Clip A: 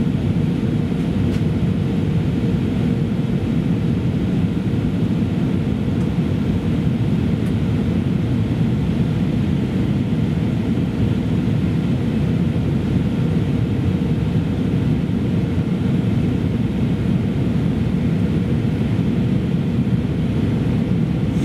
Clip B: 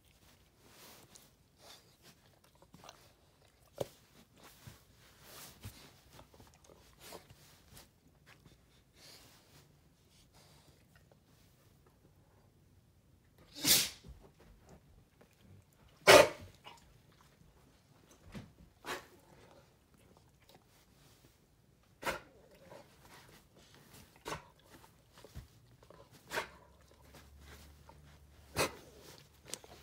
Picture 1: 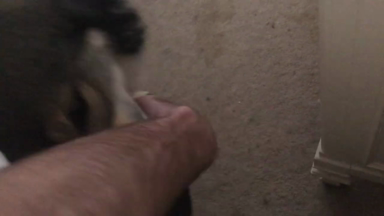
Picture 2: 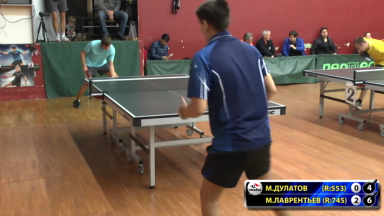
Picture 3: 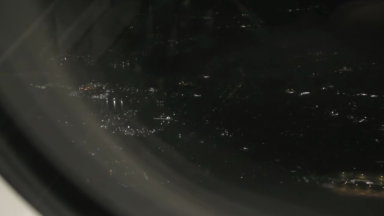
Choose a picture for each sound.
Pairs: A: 3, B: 1